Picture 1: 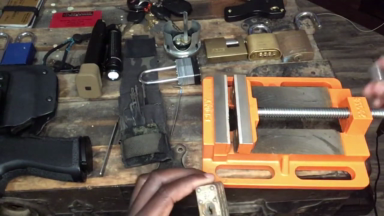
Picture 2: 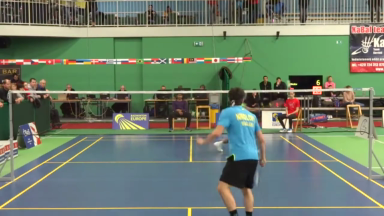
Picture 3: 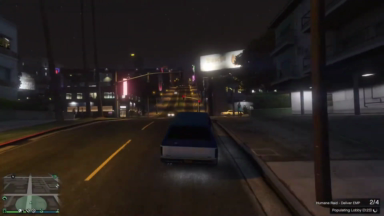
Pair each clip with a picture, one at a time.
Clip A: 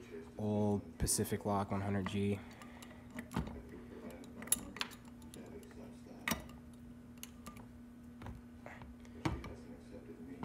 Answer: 1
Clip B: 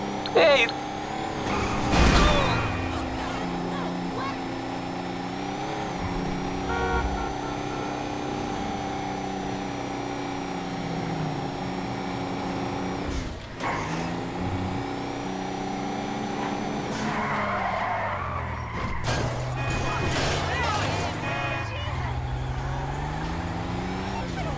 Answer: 3